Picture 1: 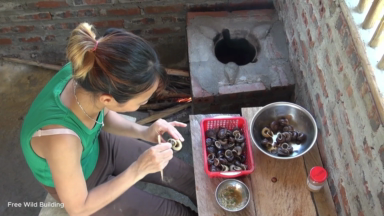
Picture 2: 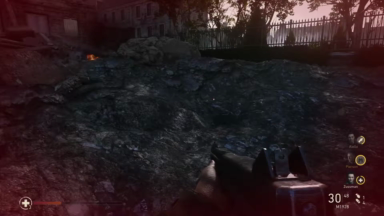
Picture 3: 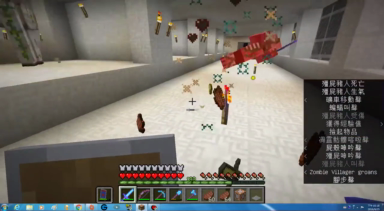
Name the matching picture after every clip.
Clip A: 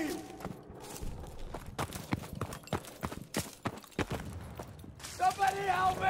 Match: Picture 2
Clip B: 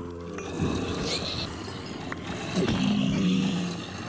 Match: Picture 3